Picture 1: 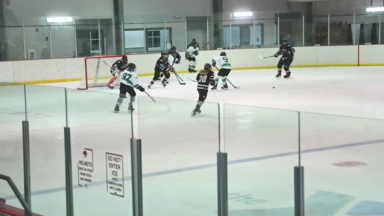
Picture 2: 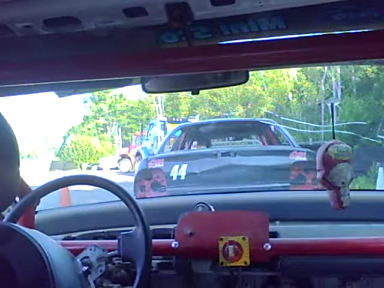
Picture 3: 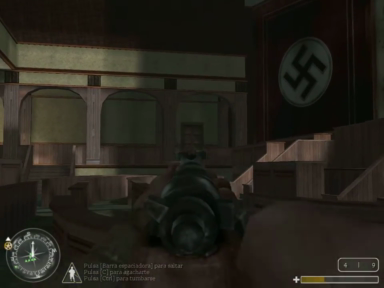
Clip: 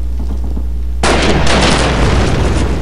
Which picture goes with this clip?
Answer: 3